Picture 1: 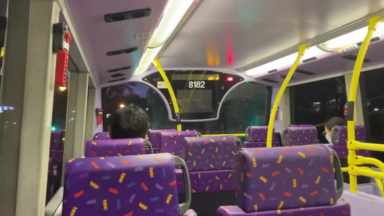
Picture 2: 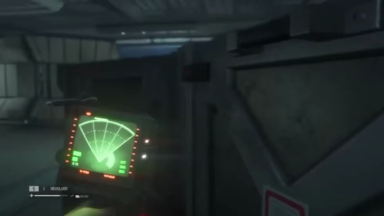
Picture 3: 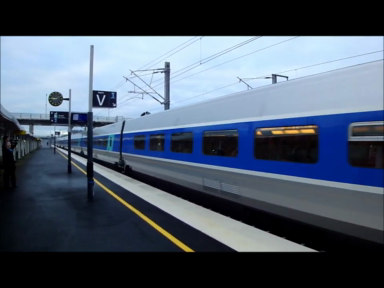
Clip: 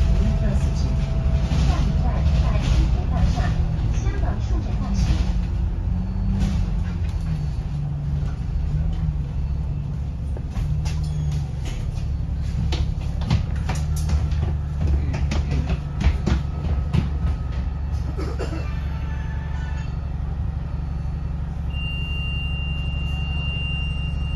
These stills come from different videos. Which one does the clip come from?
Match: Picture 1